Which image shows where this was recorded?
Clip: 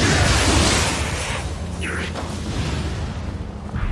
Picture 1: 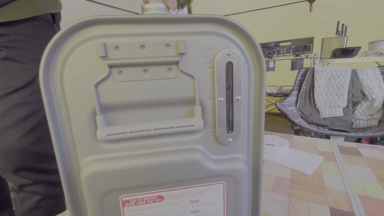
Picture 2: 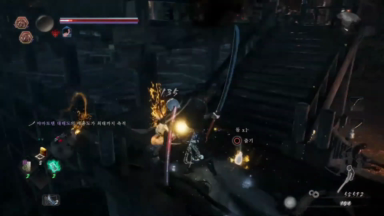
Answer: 2